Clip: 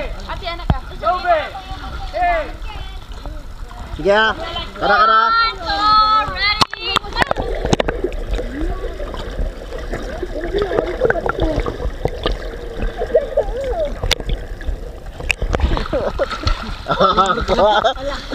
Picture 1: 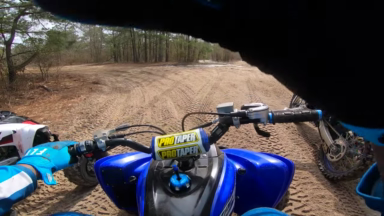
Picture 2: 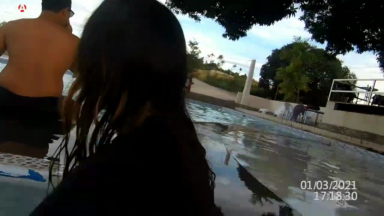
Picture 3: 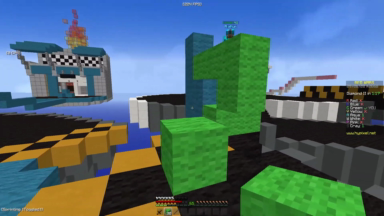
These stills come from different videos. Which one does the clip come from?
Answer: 2